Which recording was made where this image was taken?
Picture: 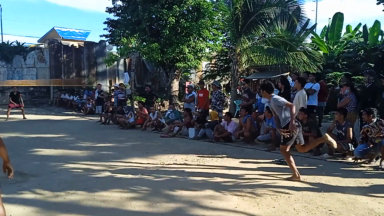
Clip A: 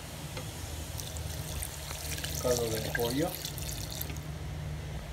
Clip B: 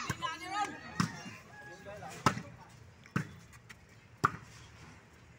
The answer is B